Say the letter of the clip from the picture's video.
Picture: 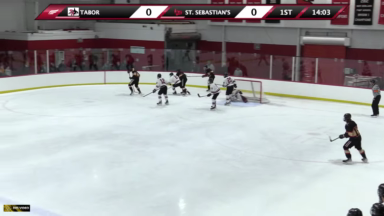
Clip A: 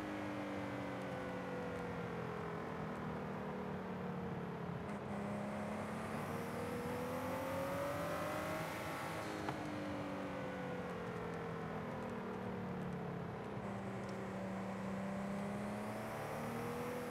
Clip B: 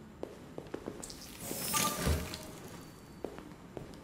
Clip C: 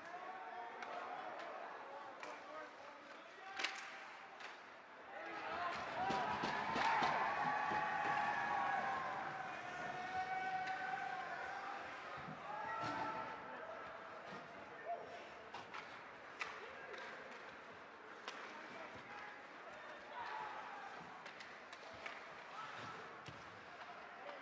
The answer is C